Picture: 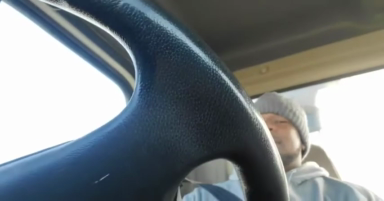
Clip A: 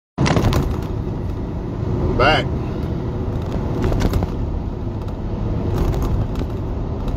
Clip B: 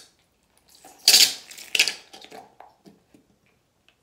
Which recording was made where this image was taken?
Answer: A